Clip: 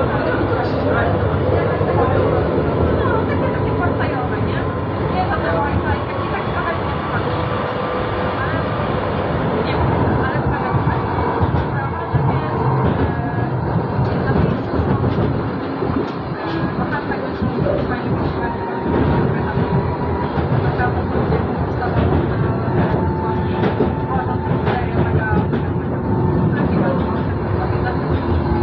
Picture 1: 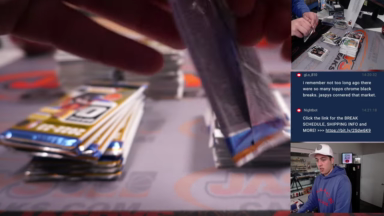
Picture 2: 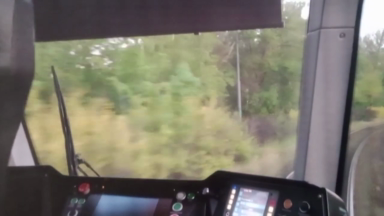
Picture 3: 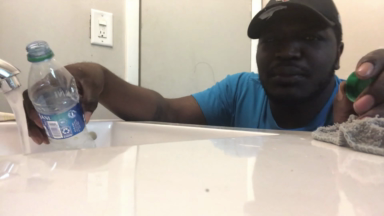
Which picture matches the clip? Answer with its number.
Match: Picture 2